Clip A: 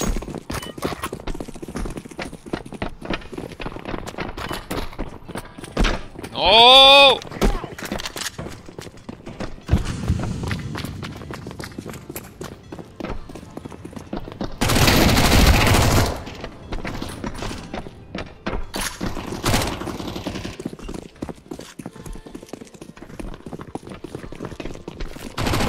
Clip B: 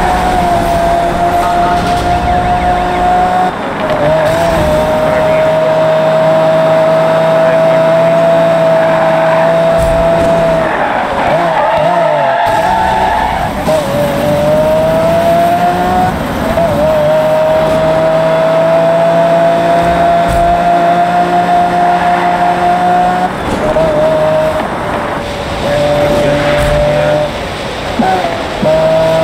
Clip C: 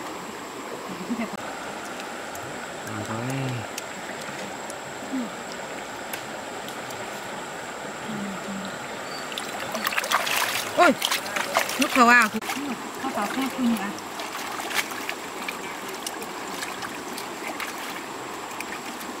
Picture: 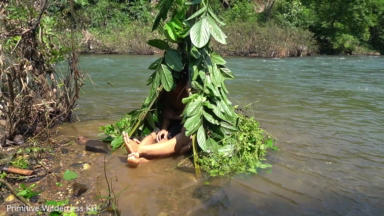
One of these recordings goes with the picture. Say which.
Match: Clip C